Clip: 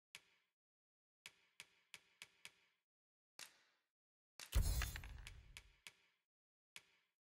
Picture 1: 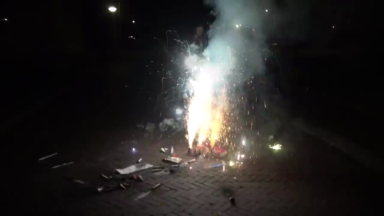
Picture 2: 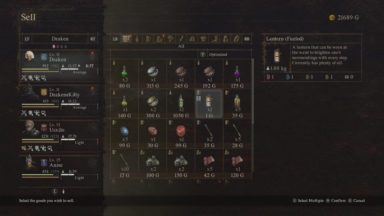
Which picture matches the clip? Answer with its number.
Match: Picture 2